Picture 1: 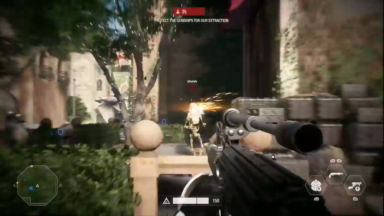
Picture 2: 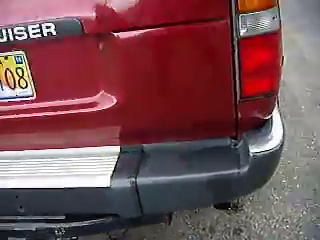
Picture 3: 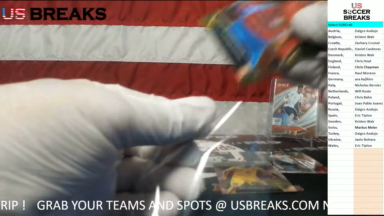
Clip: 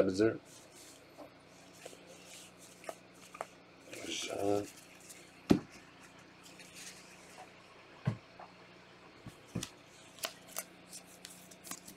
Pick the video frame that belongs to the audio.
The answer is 3